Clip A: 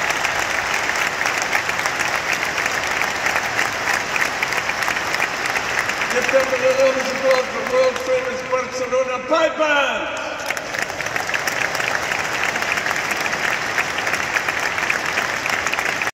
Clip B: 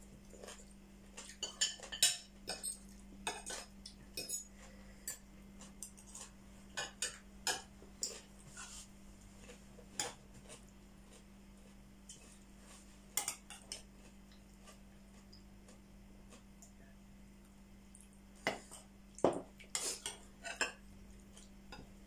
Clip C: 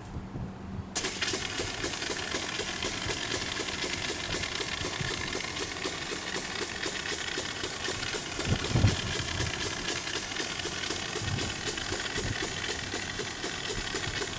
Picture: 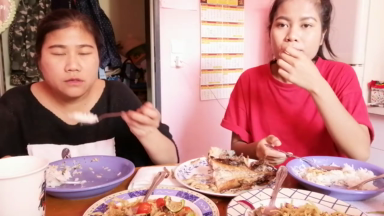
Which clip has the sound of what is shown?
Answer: B